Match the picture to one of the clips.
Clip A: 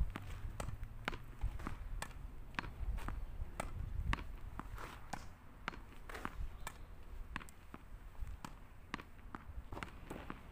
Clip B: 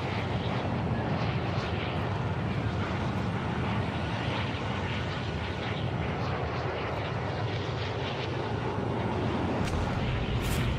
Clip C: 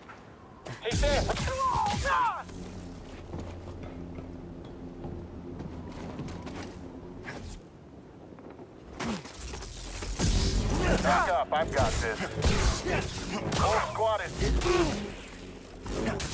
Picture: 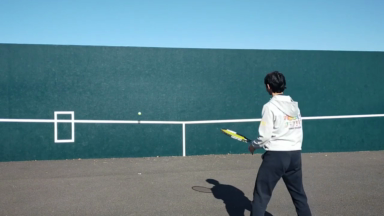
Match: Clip A